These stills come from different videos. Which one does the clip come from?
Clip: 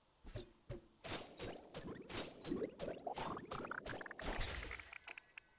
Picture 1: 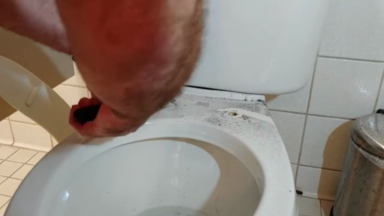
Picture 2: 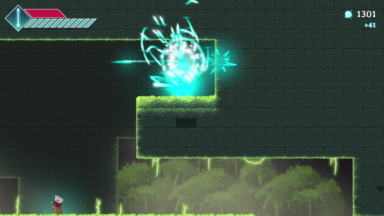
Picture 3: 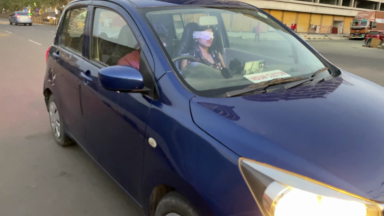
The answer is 2